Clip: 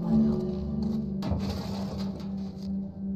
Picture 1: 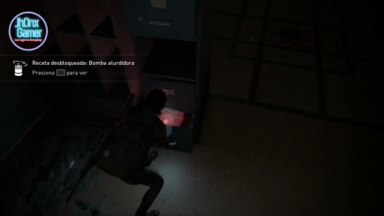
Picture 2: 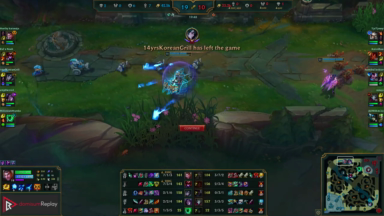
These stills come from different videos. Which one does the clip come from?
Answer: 1